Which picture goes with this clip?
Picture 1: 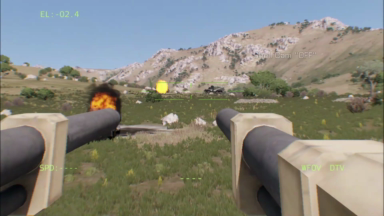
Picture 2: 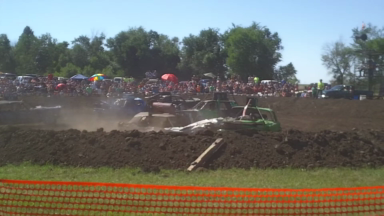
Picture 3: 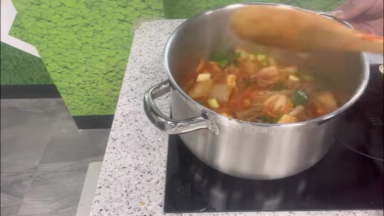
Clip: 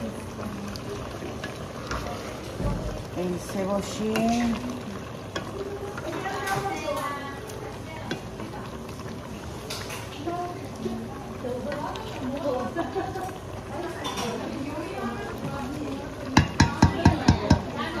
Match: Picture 3